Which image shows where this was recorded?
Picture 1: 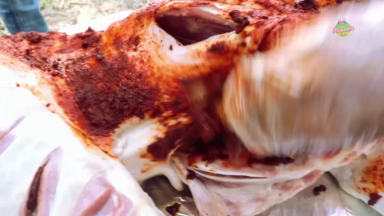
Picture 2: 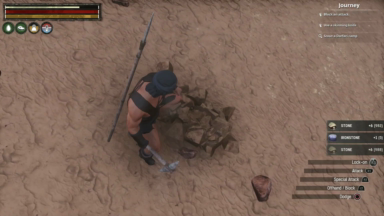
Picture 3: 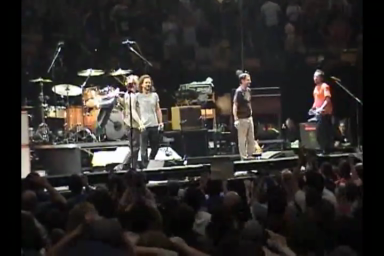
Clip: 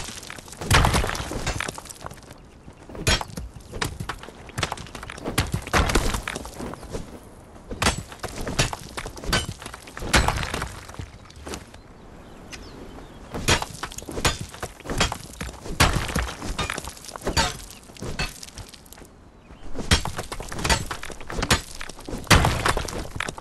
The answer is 2